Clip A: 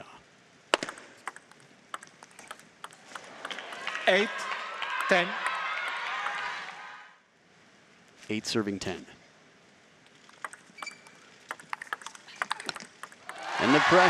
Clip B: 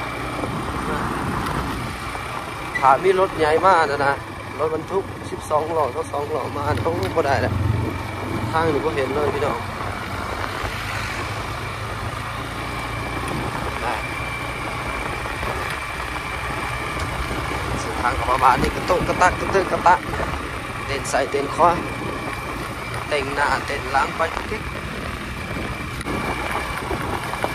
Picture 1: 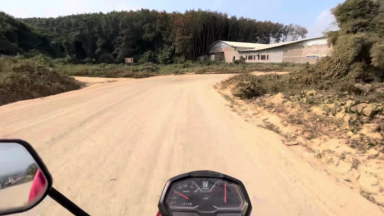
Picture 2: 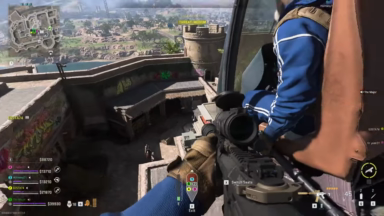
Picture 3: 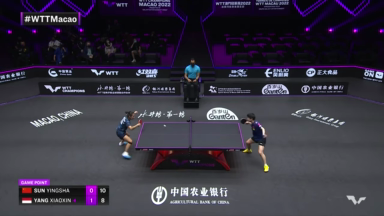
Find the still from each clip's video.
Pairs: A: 3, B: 1